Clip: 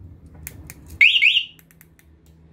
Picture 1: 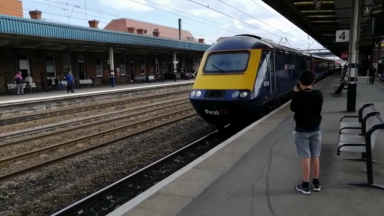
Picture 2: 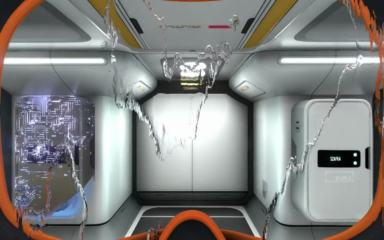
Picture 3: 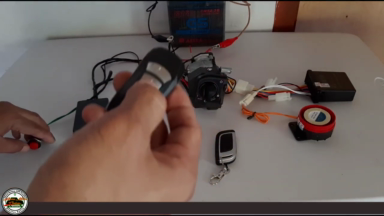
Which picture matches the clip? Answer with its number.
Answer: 3